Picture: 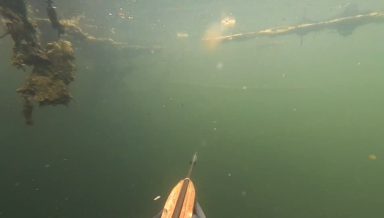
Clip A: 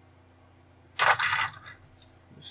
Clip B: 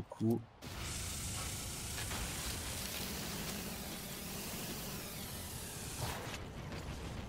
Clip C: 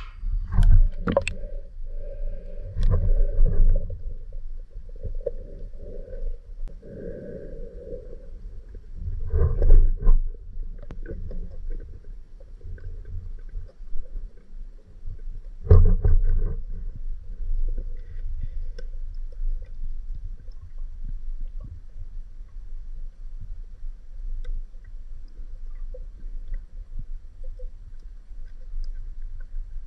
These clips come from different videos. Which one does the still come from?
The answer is C